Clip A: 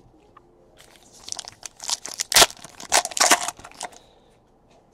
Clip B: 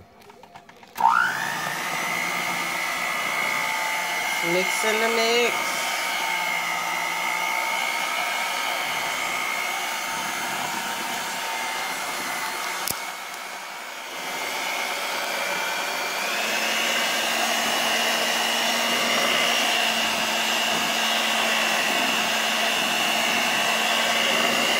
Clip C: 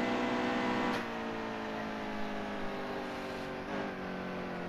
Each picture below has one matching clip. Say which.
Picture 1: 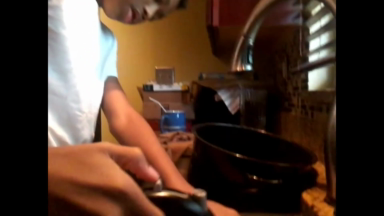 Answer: B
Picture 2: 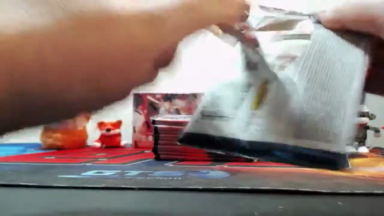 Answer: A